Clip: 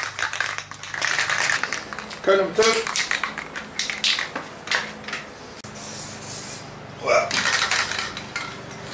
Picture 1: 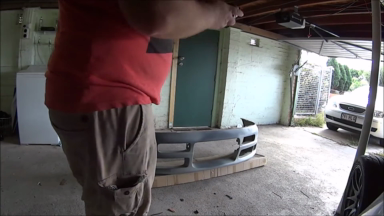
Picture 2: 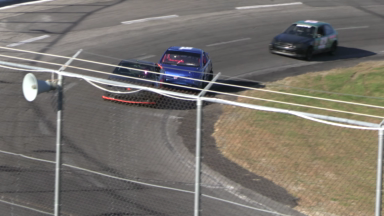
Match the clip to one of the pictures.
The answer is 1